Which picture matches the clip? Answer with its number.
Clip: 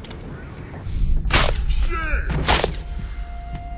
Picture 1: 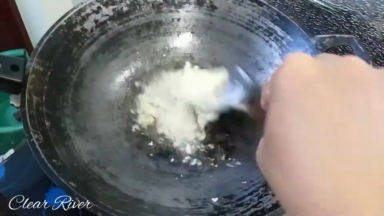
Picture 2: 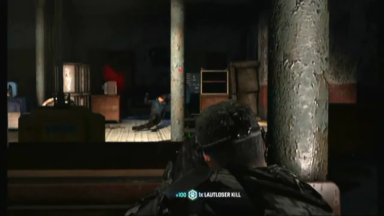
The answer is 2